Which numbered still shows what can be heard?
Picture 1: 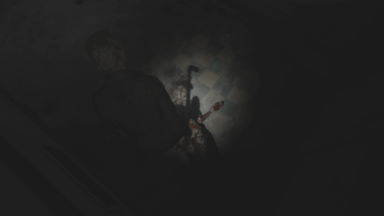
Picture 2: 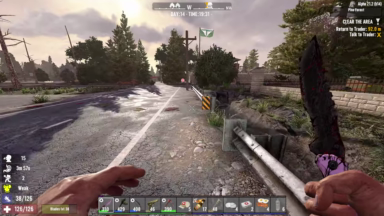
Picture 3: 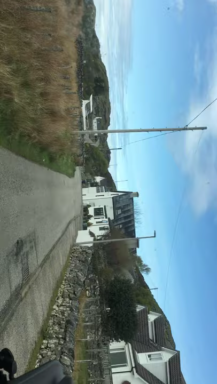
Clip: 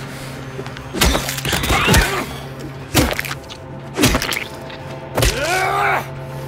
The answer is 1